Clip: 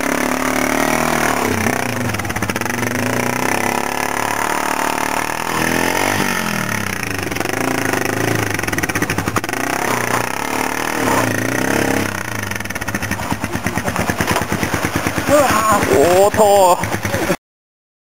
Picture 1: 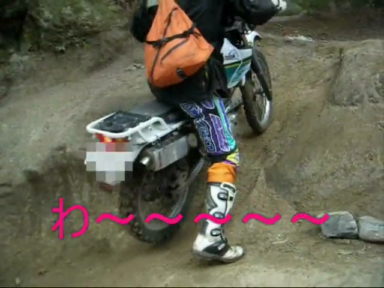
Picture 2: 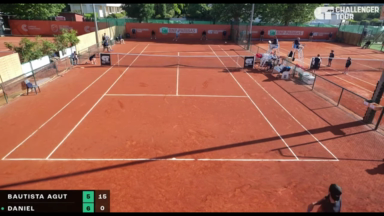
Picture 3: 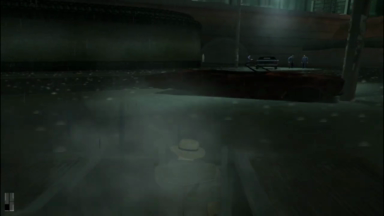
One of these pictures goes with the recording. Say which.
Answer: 1